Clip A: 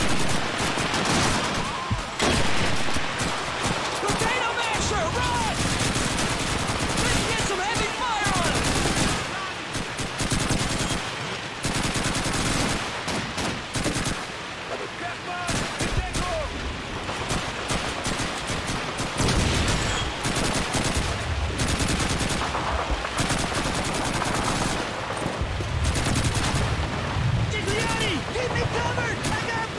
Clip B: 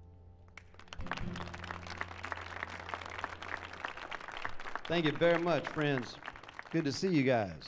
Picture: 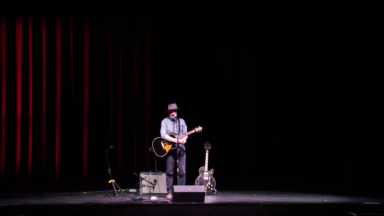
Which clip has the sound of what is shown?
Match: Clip B